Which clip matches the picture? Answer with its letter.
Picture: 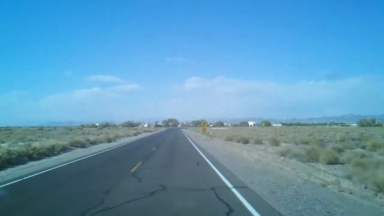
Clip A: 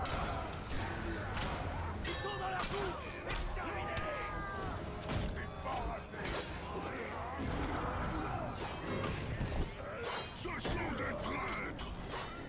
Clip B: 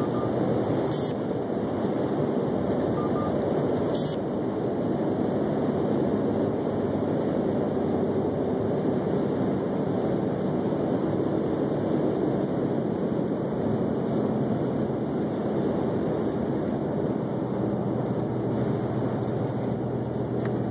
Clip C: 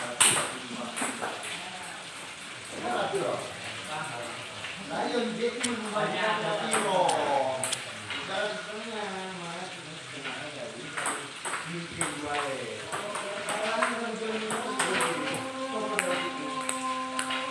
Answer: B